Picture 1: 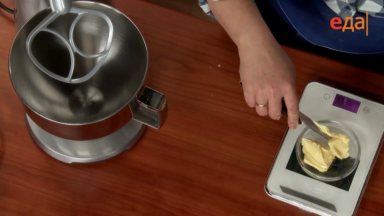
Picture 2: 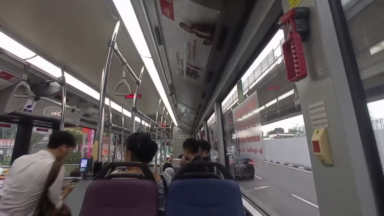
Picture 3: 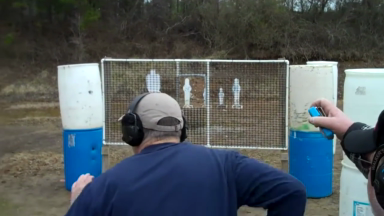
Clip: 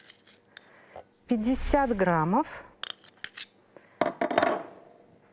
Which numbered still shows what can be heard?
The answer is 1